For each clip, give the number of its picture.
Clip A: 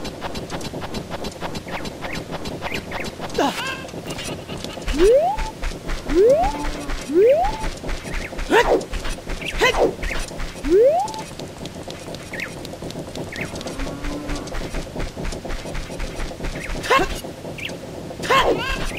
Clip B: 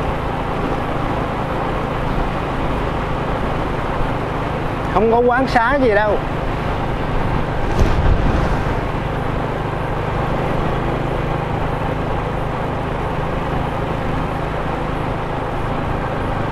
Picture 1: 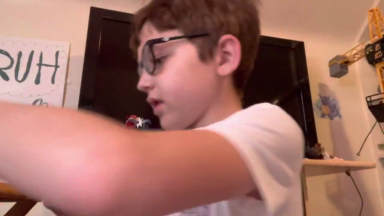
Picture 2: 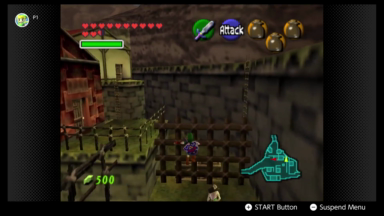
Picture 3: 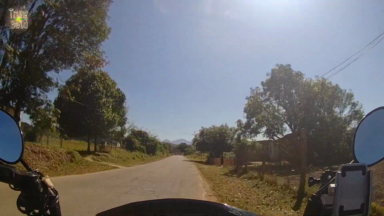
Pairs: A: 2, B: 3